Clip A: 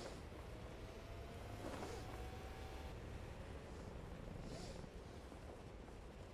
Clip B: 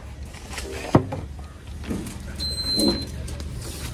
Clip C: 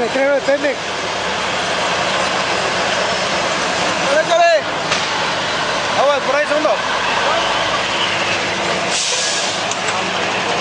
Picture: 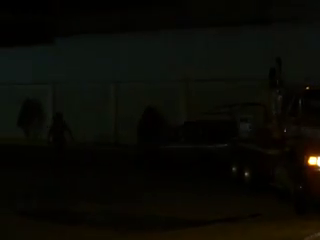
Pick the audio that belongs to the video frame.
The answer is C